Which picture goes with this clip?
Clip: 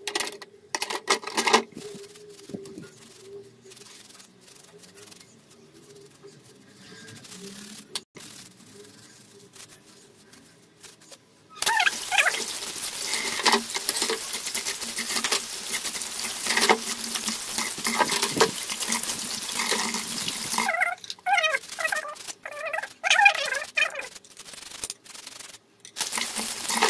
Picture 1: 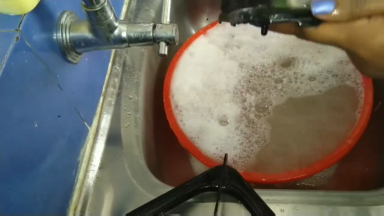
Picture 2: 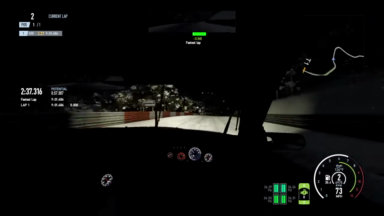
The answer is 1